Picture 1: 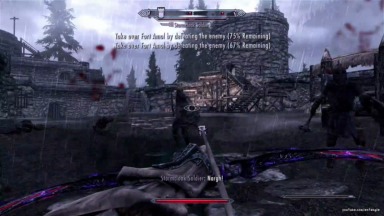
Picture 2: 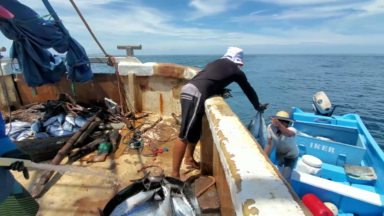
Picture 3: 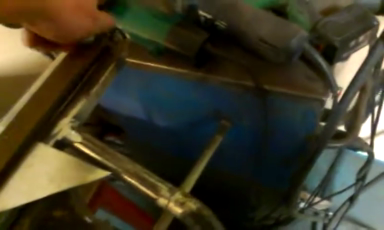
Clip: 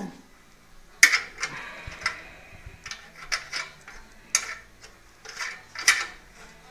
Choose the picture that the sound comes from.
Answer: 3